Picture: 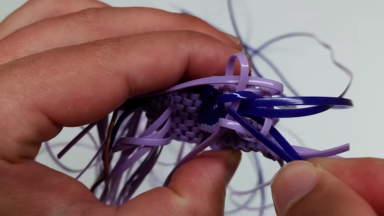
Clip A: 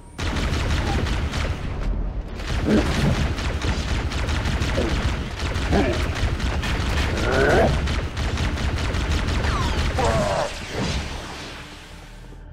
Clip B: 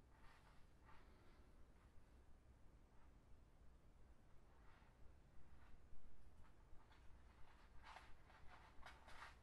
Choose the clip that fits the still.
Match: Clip B